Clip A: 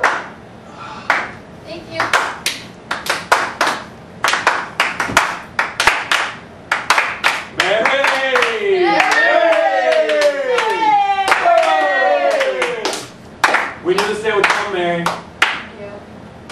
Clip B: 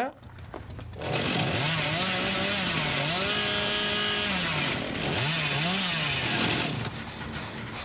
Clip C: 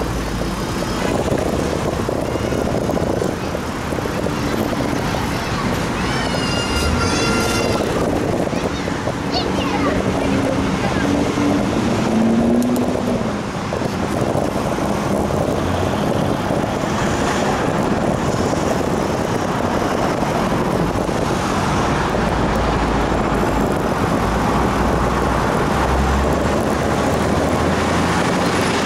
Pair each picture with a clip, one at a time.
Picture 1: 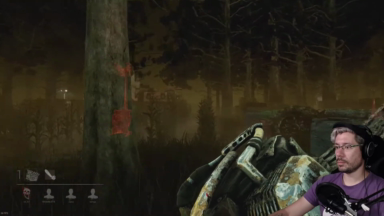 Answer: B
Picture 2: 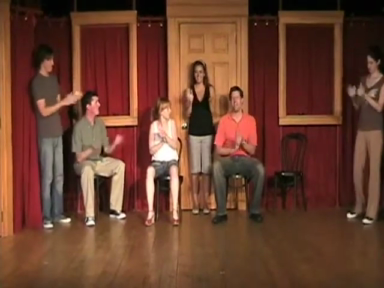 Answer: A